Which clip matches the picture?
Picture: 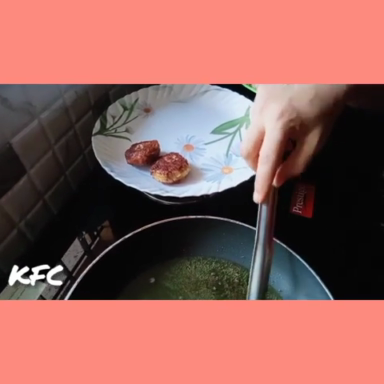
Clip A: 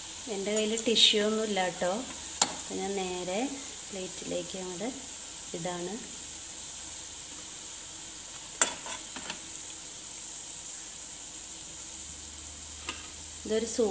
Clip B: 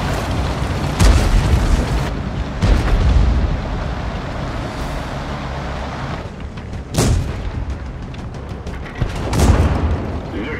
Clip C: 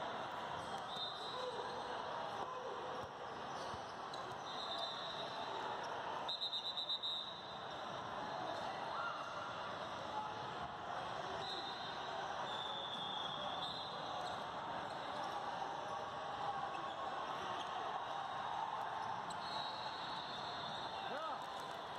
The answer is A